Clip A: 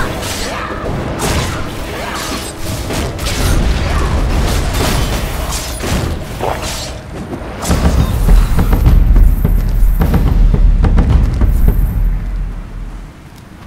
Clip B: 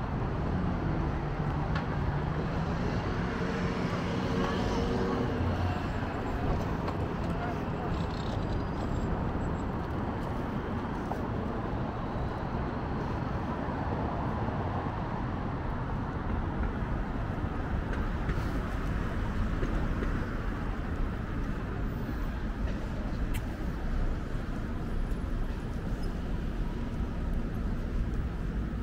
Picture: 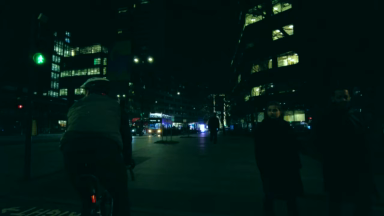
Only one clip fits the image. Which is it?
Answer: B